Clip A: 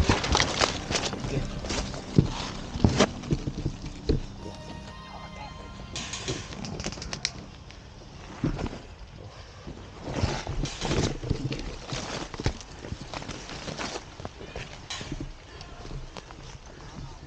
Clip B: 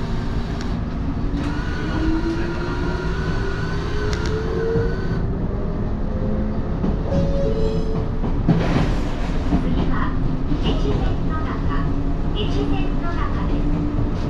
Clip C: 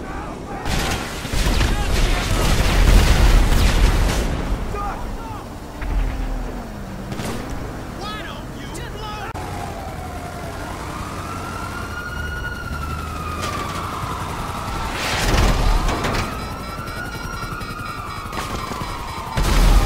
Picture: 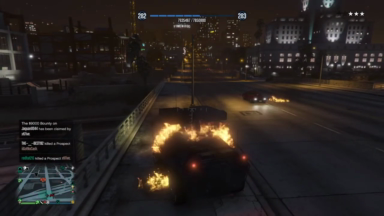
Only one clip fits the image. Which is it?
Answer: C